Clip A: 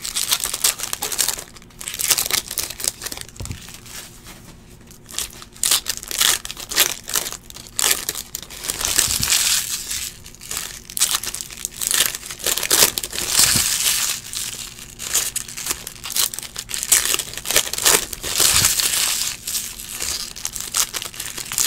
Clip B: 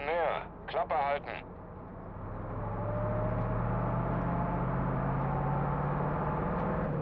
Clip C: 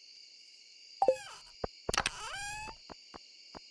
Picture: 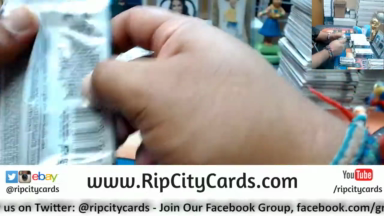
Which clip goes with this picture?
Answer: A